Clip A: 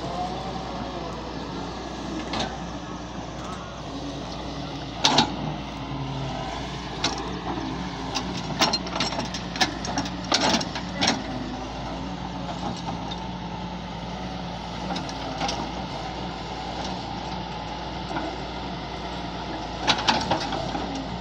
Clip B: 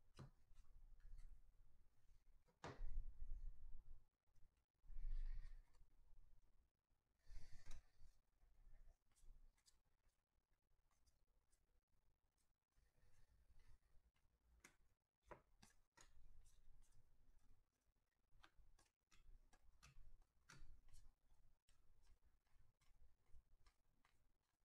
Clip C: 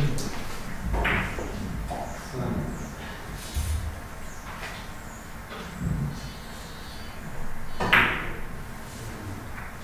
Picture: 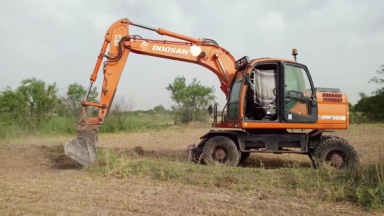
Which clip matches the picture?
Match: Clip A